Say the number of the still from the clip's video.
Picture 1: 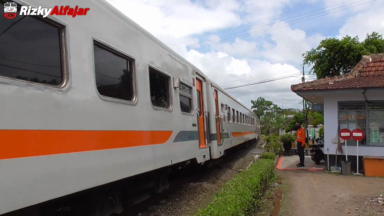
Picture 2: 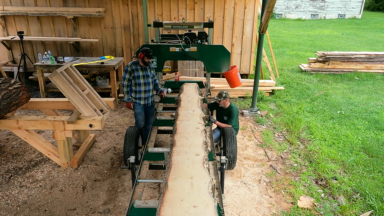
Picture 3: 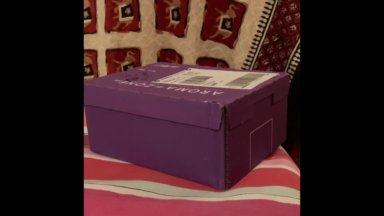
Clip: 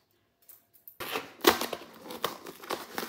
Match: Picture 3